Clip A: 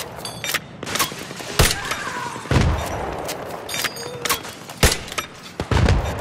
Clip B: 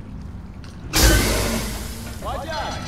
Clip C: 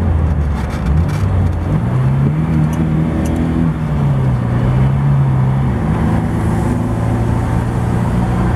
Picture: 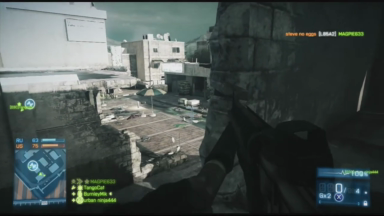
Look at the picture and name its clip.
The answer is A